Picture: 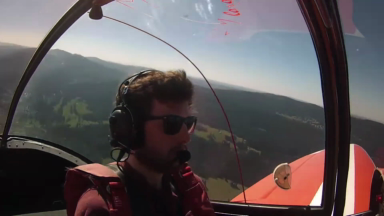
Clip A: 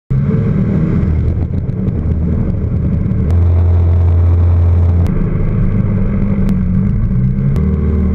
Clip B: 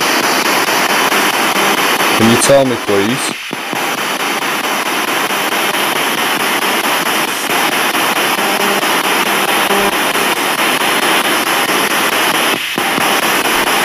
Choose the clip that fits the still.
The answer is A